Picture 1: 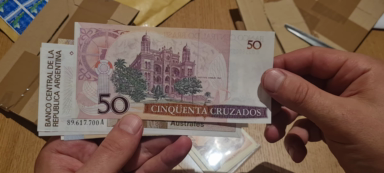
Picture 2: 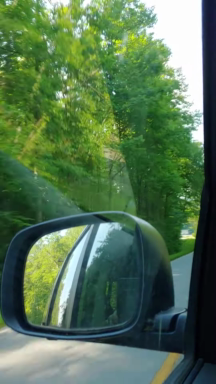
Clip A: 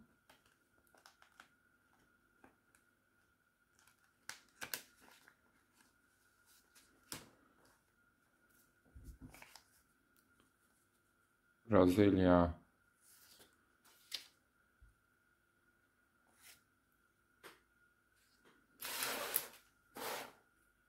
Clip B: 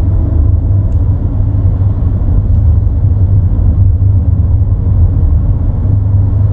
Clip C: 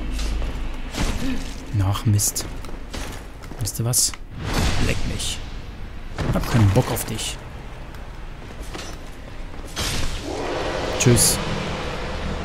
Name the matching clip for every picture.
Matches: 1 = A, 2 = B